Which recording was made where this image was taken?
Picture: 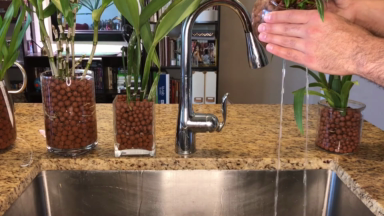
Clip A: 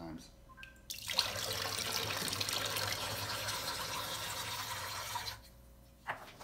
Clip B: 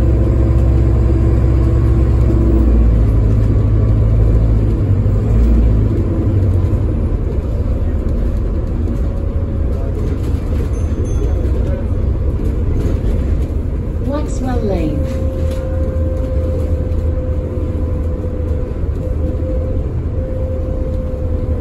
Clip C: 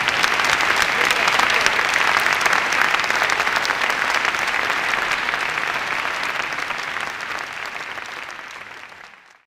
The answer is A